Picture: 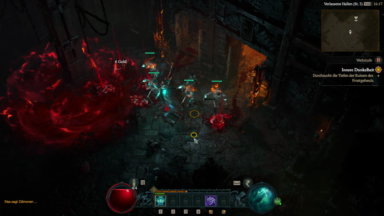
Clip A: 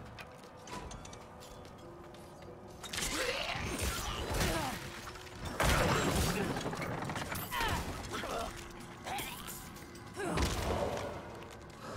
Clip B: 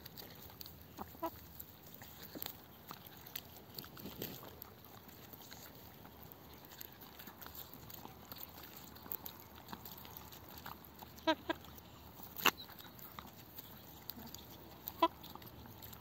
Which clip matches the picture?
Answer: A